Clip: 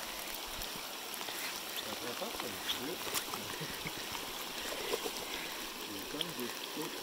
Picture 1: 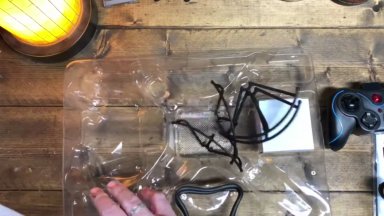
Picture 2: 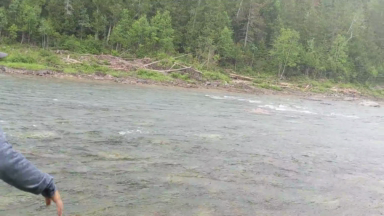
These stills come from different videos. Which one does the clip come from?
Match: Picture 2